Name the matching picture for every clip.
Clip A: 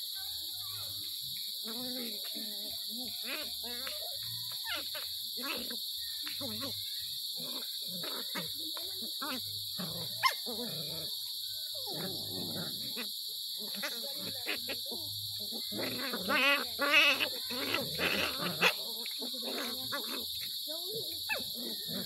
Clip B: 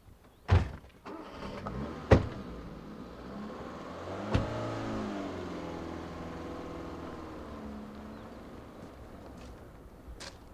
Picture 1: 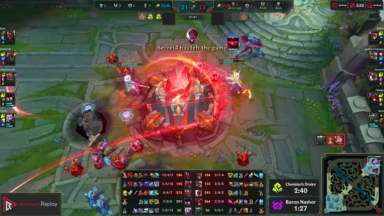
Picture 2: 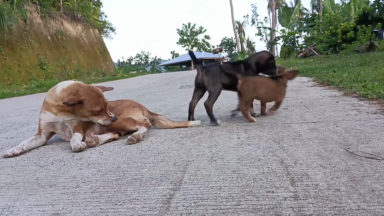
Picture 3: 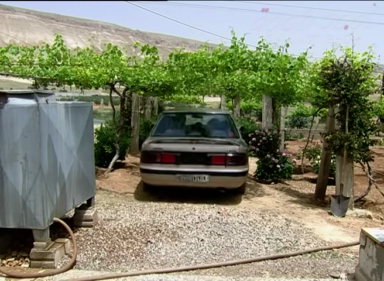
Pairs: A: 2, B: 3